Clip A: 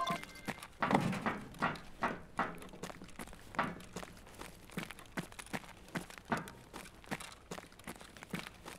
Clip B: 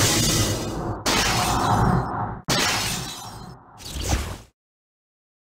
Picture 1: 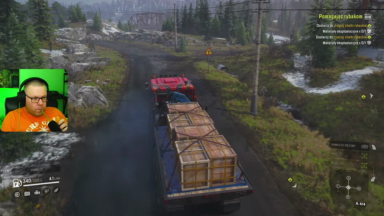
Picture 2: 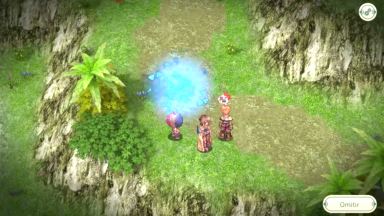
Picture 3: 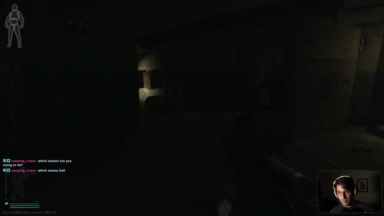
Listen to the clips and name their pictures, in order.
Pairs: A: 3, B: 2